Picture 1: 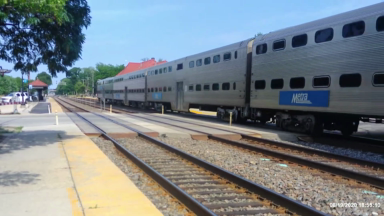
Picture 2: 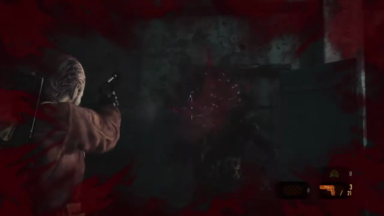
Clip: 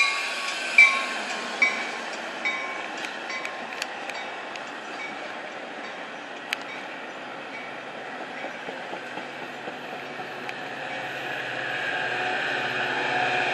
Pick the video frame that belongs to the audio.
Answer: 1